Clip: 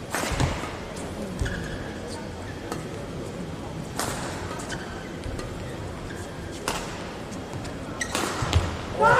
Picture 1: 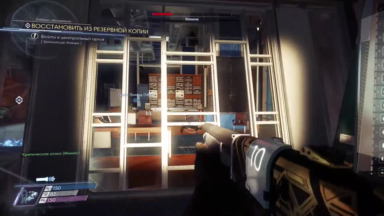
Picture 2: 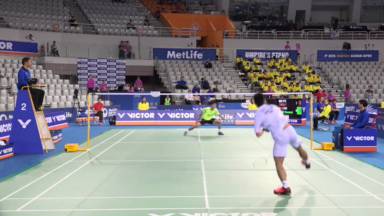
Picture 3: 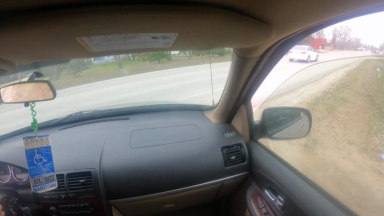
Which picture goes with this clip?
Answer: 2